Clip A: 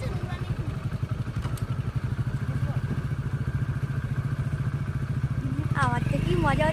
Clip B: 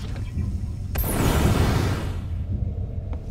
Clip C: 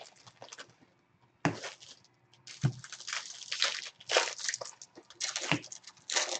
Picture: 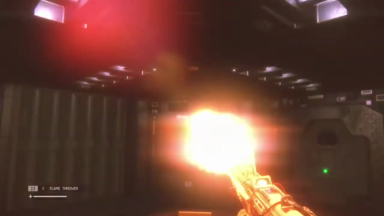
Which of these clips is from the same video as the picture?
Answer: B